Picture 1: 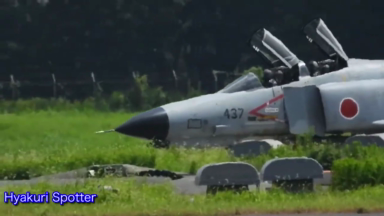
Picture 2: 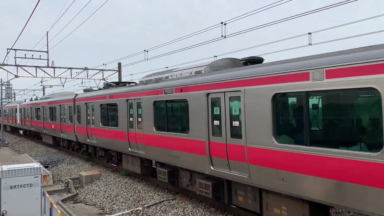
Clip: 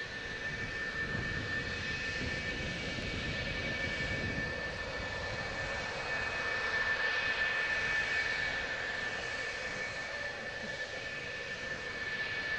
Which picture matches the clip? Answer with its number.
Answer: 1